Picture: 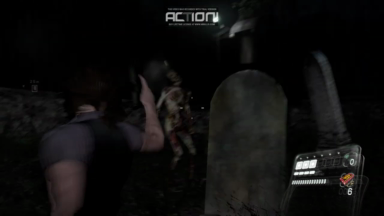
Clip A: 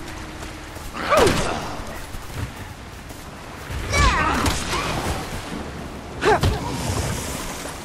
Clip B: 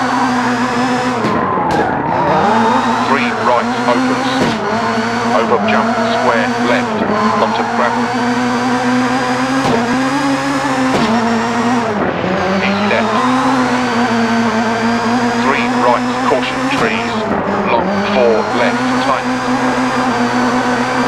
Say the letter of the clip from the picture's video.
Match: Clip A